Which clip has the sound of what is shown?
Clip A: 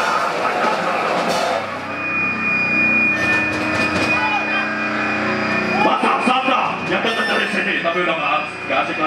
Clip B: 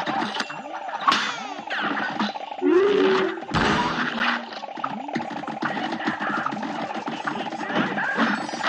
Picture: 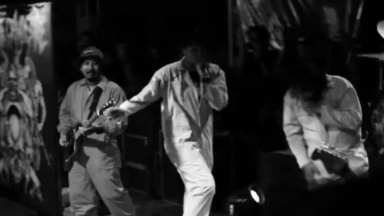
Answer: A